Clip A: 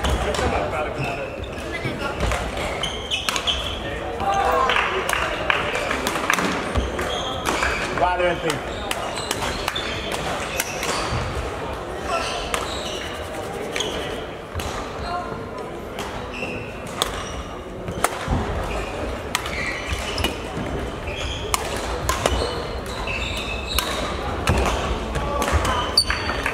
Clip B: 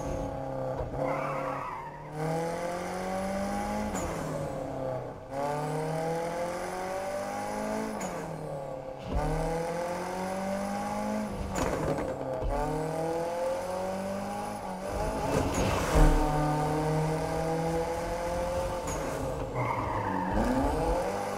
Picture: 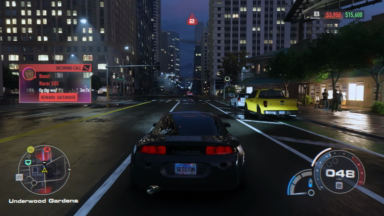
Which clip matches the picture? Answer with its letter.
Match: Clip B